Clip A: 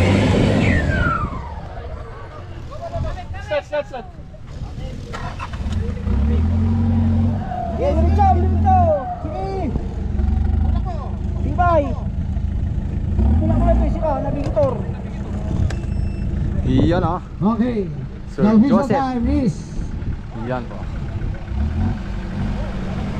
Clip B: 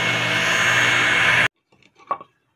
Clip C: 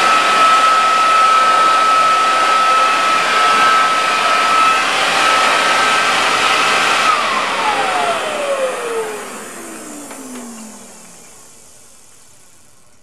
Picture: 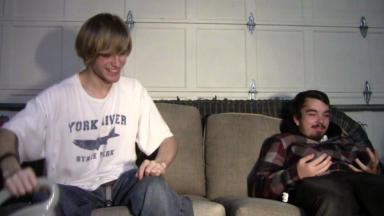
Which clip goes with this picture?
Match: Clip C